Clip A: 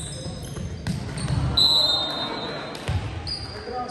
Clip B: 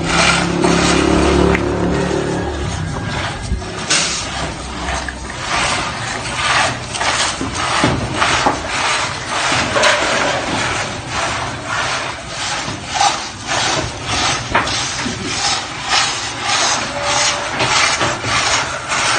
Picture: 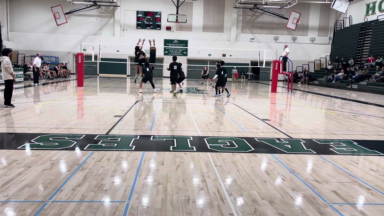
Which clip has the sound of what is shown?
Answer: A